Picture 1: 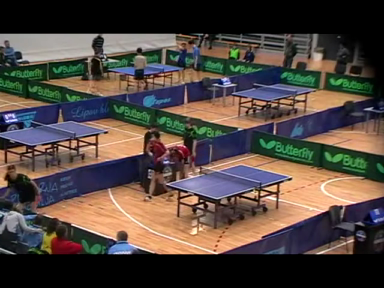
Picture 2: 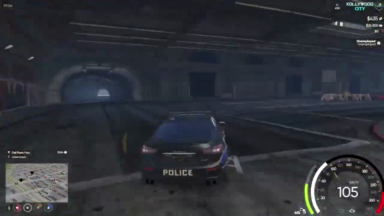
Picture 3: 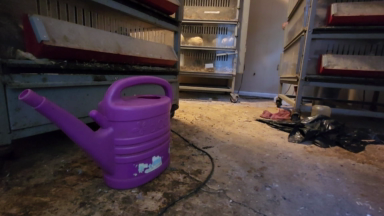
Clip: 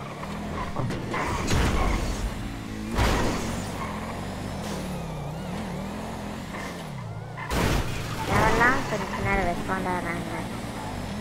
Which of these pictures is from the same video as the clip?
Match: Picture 2